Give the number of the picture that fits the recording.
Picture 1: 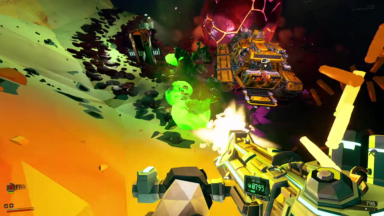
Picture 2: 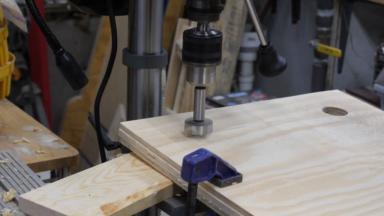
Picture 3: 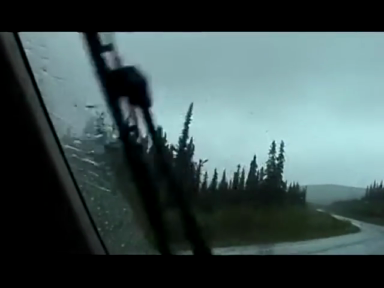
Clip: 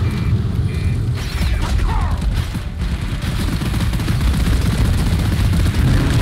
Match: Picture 1